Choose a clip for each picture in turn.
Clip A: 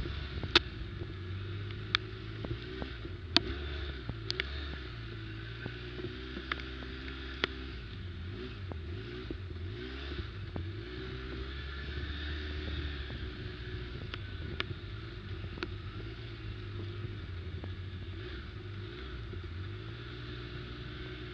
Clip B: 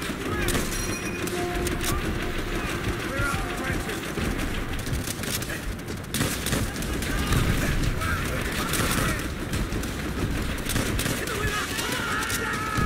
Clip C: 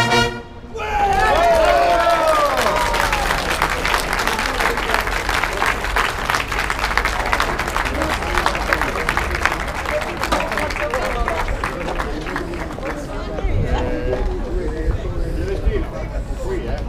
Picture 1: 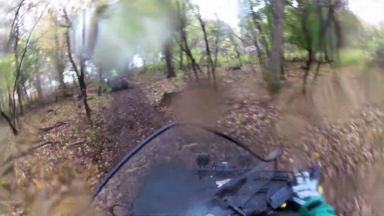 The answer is A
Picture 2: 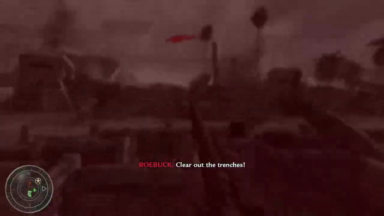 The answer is B